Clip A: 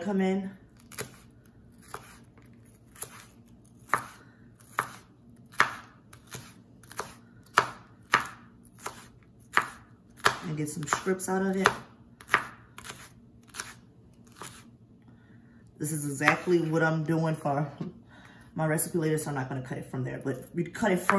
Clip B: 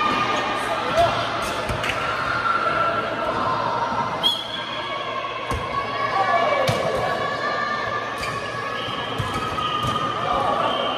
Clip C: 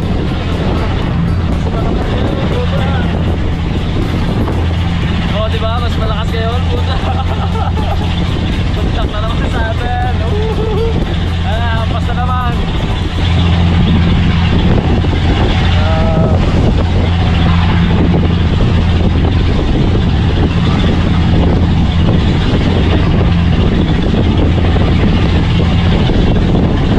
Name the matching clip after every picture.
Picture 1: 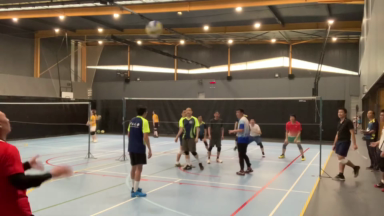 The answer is B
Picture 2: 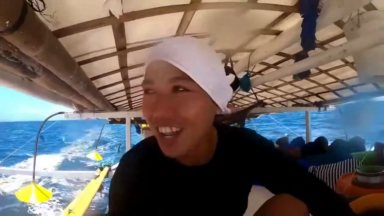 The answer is C